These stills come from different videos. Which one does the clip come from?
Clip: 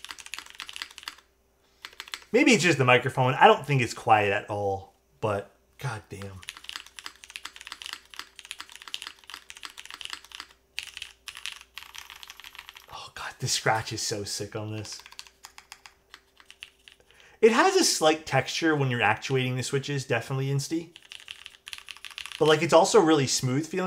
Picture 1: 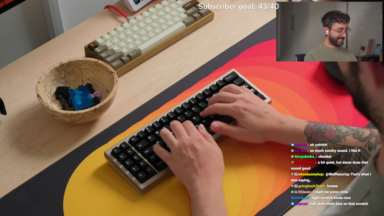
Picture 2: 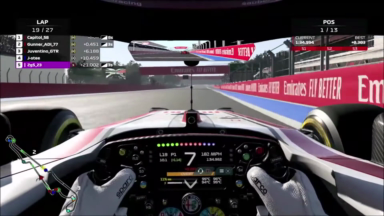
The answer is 1